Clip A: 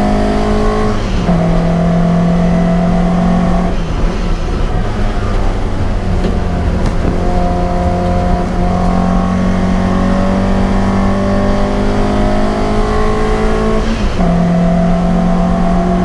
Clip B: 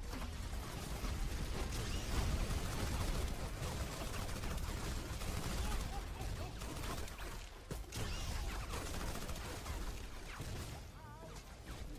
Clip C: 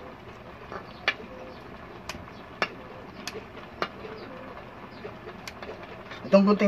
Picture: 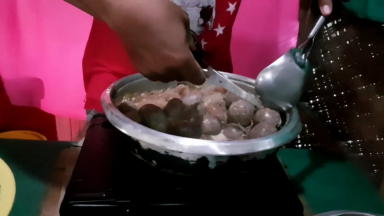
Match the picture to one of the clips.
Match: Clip C